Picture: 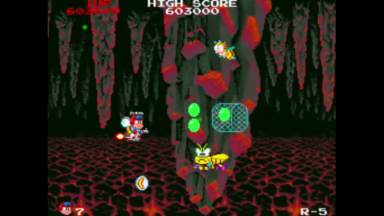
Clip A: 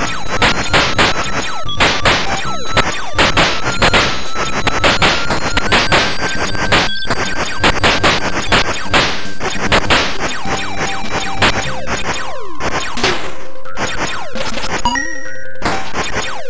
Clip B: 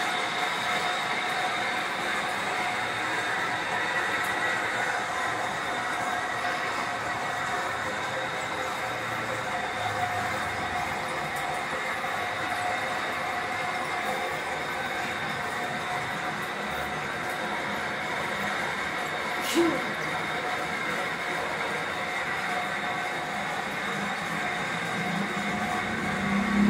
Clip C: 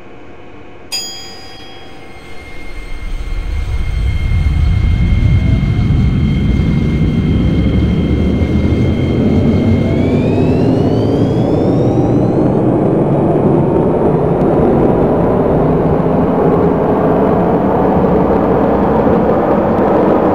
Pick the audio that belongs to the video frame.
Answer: A